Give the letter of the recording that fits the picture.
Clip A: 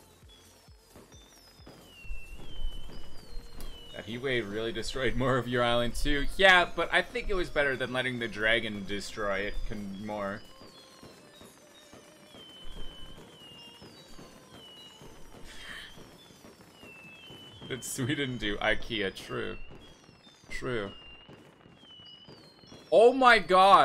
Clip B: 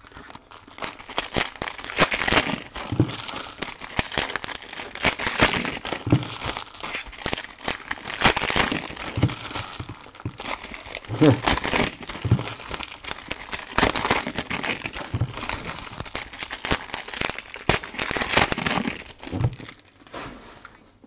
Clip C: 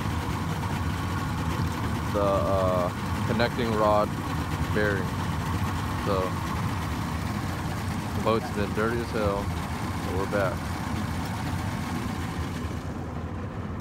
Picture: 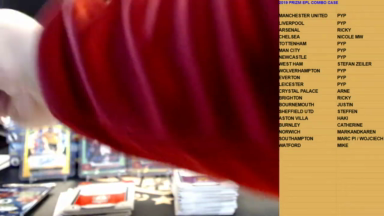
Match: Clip B